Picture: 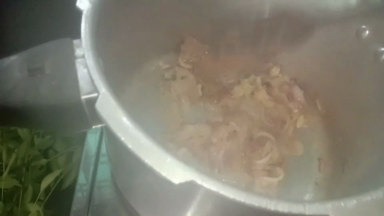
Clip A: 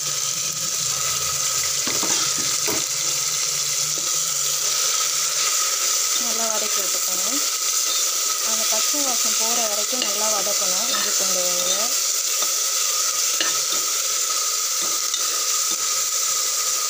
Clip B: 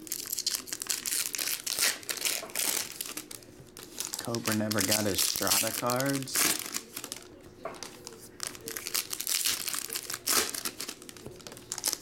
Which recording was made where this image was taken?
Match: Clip A